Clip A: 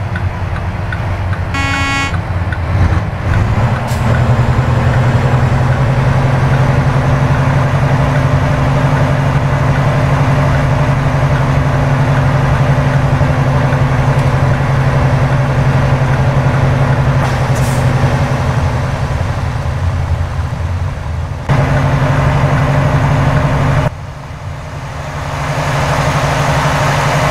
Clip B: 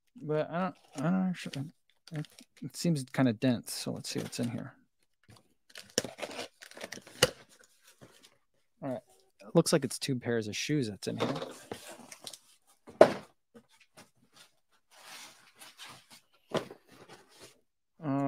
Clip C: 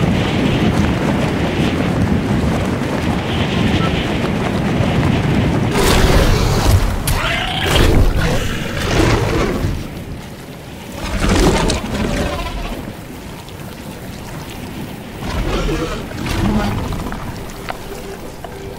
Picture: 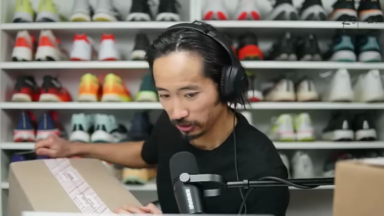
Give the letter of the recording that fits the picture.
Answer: B